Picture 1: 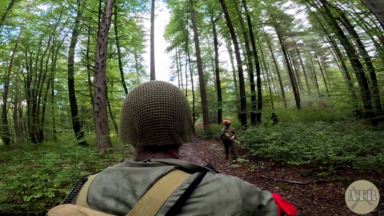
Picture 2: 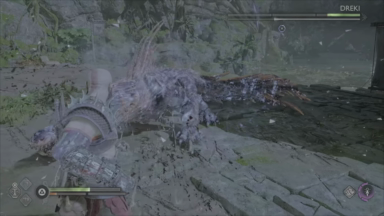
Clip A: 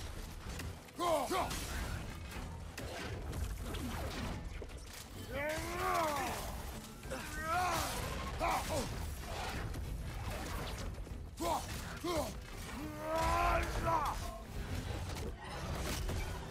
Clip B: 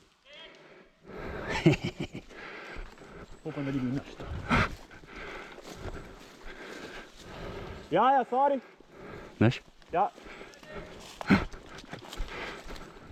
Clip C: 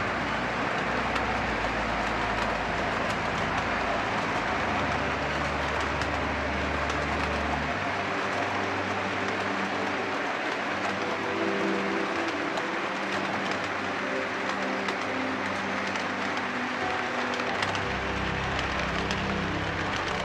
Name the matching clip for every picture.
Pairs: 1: B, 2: A